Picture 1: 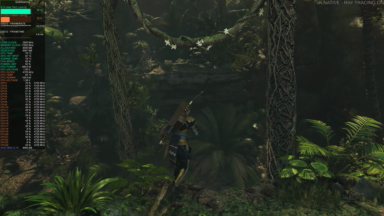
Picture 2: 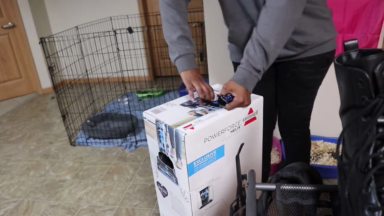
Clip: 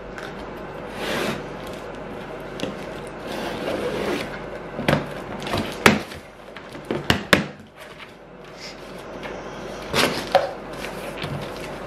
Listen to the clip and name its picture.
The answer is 2